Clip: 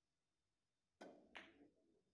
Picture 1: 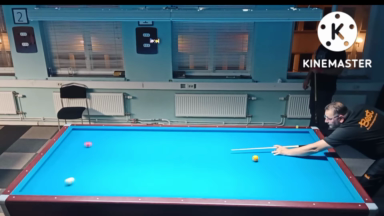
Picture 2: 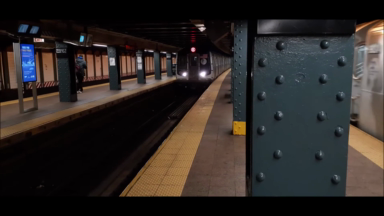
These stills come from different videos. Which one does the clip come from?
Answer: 1